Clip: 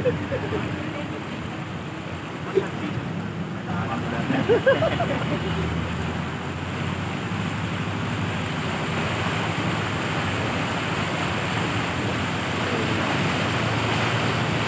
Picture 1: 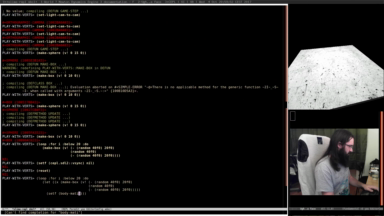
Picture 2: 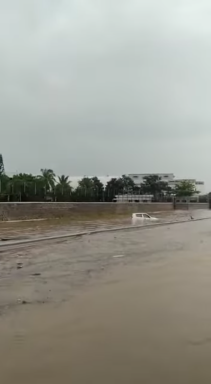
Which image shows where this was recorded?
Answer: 2